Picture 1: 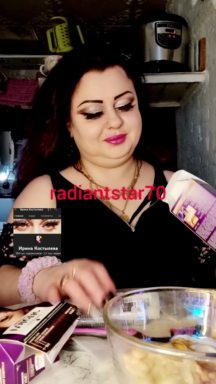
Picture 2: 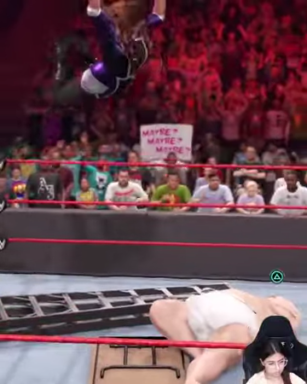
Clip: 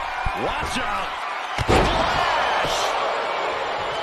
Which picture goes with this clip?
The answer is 2